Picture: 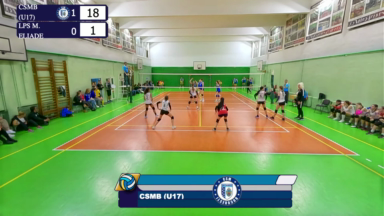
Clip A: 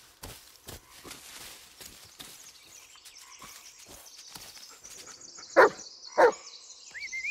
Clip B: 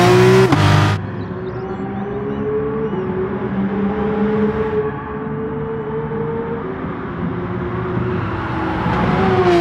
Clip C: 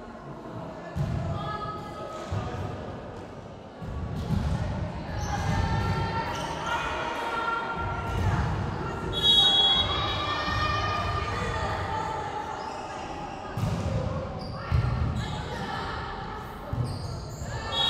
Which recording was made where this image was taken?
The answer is C